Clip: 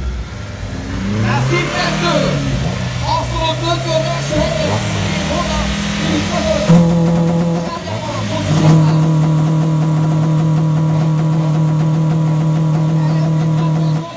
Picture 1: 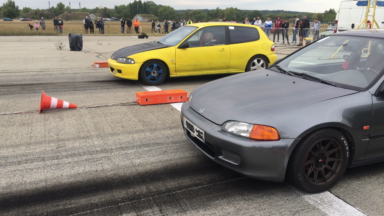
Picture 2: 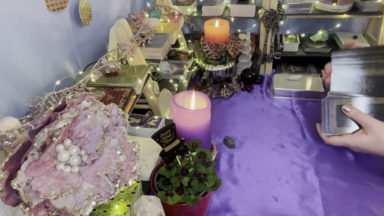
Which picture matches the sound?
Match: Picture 1